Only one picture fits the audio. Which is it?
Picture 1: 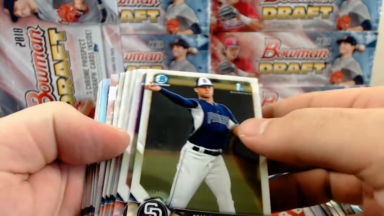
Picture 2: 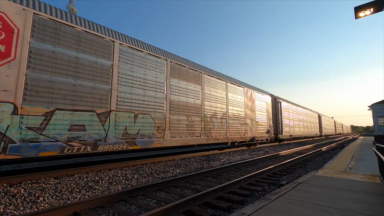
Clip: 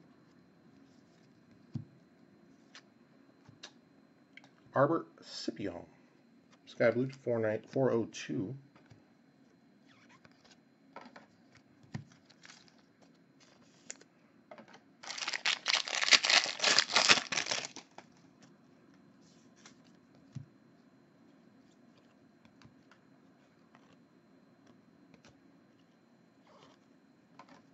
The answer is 1